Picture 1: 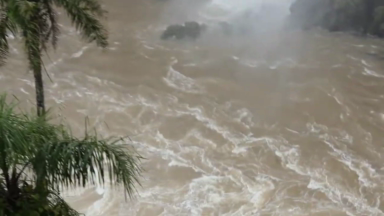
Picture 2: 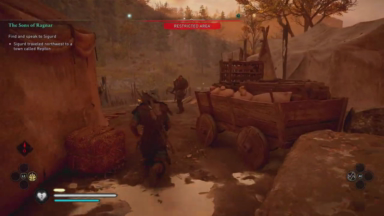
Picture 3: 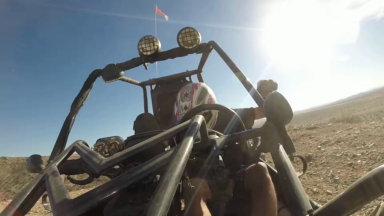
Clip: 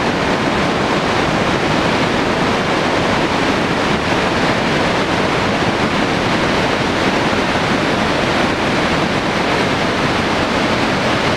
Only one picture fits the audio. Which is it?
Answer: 1